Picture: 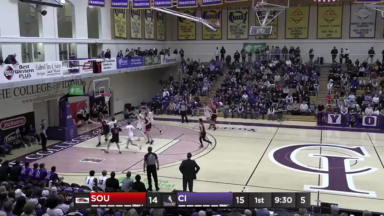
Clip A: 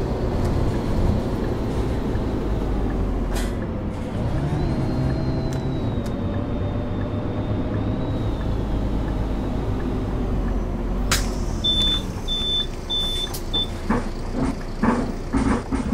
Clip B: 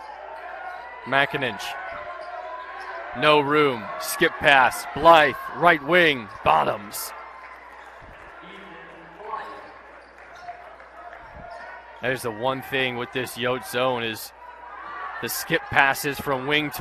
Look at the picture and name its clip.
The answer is B